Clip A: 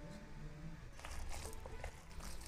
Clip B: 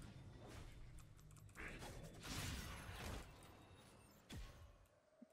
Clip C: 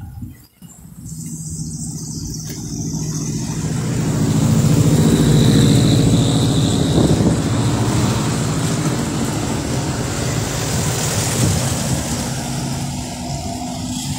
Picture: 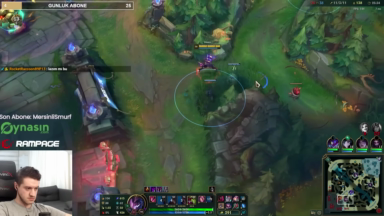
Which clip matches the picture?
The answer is B